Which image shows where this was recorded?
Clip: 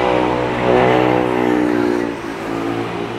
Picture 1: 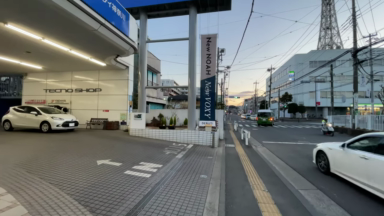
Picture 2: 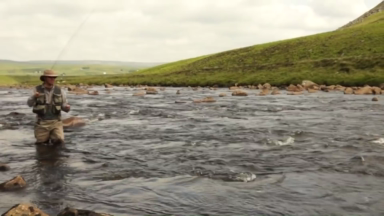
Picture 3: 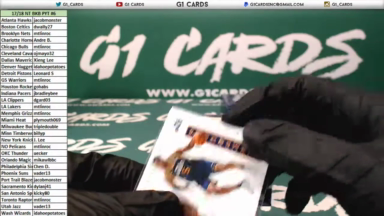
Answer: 1